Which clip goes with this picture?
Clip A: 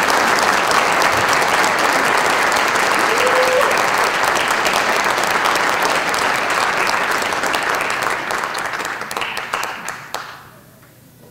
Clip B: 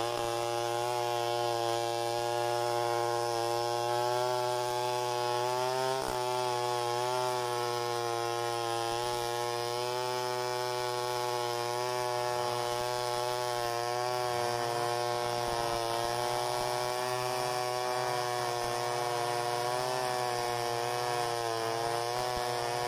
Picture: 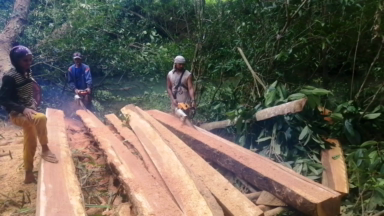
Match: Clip B